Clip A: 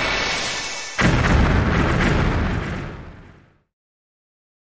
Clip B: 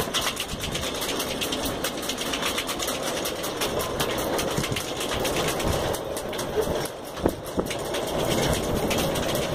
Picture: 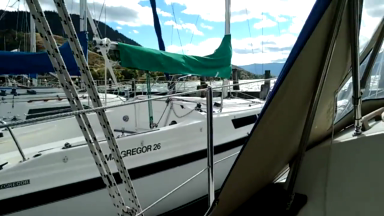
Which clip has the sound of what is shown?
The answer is B